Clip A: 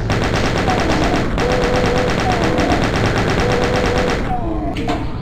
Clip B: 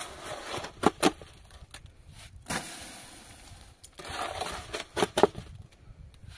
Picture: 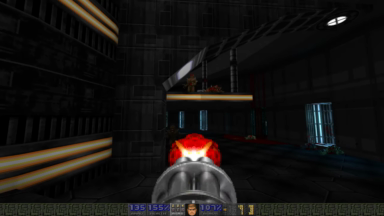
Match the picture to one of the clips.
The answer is A